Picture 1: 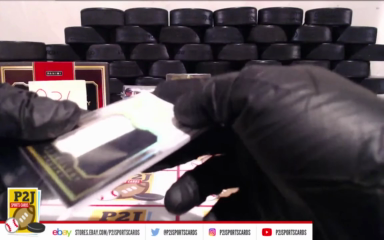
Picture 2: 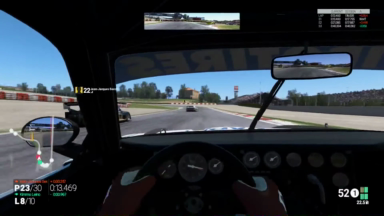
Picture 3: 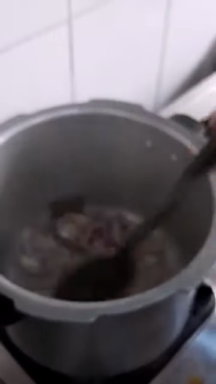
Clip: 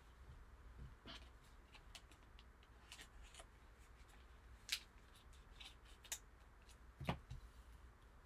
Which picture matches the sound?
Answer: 1